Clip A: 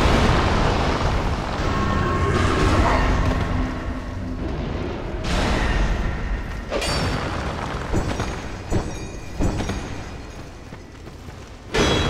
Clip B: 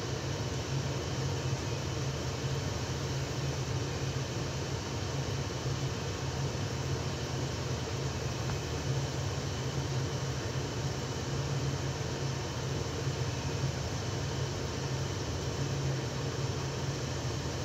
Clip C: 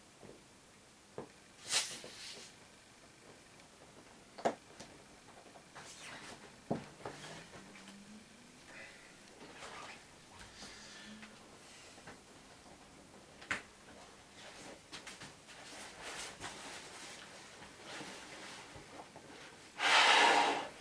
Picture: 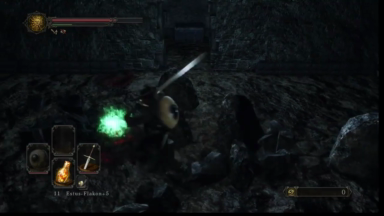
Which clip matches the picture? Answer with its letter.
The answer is A